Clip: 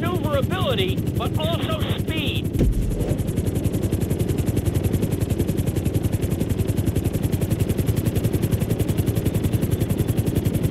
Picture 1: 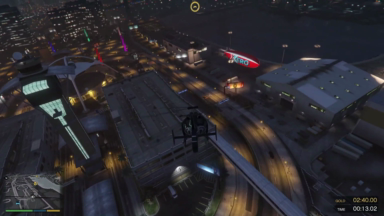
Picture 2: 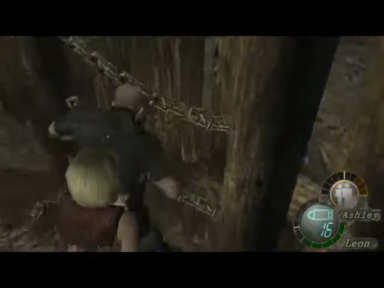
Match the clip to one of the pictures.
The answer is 1